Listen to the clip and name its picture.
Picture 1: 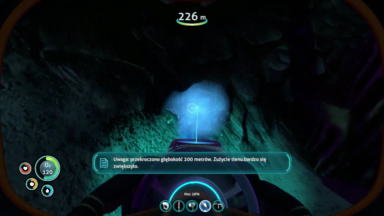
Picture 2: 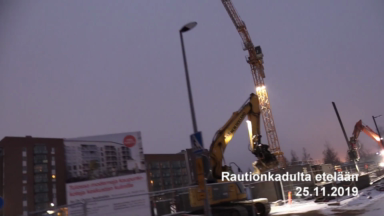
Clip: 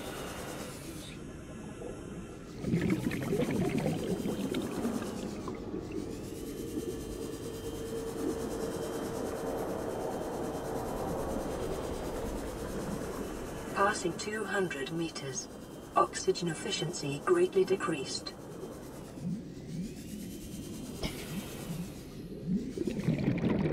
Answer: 1